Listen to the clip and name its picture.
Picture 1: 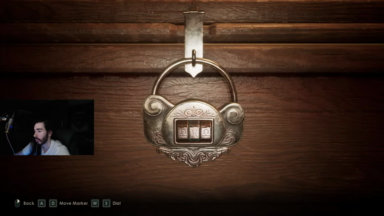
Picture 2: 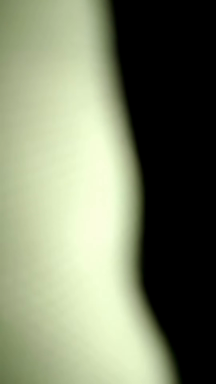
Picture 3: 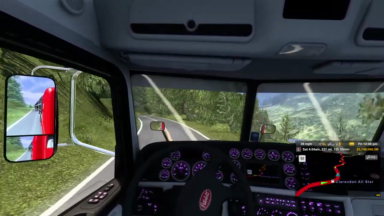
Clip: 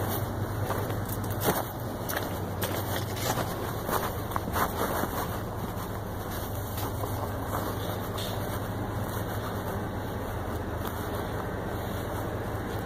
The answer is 2